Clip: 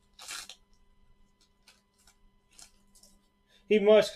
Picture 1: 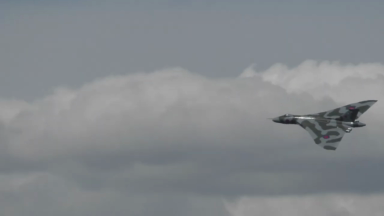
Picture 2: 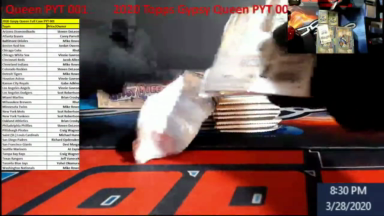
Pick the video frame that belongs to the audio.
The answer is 2